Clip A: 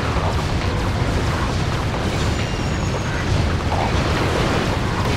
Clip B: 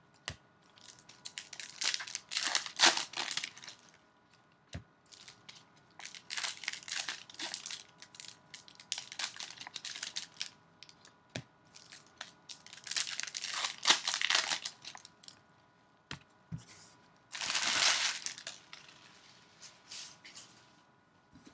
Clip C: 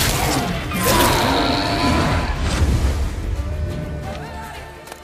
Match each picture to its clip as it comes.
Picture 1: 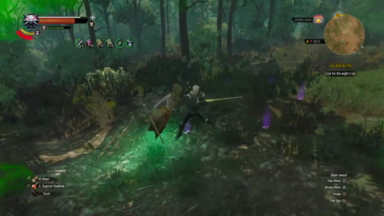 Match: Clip C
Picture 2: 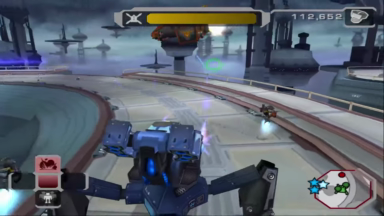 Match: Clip A